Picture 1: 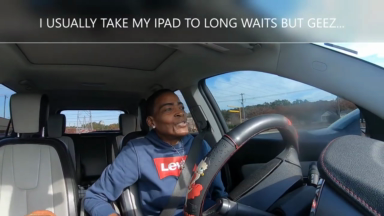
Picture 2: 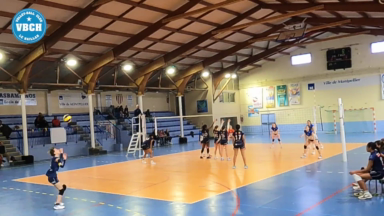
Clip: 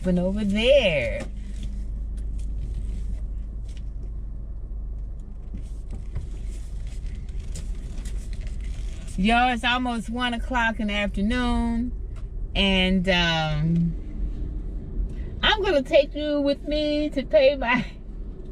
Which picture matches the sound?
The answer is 1